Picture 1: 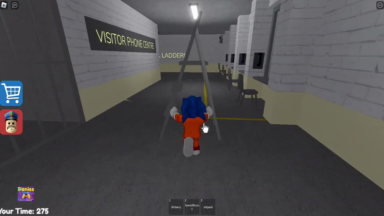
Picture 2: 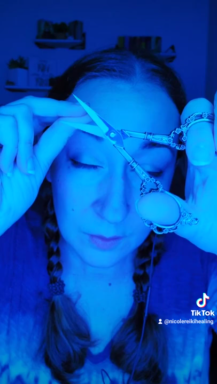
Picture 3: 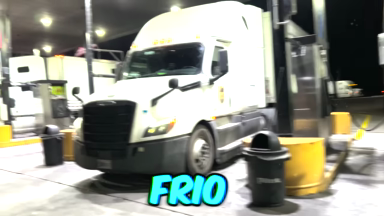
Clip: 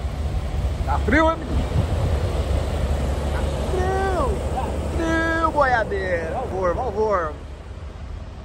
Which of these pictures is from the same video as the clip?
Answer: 3